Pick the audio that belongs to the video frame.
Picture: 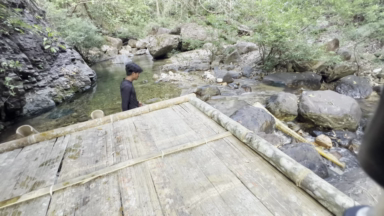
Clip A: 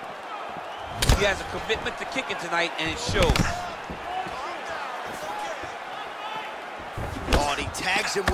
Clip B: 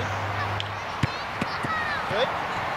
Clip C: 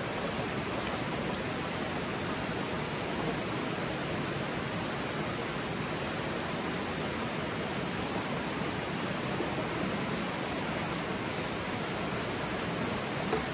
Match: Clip C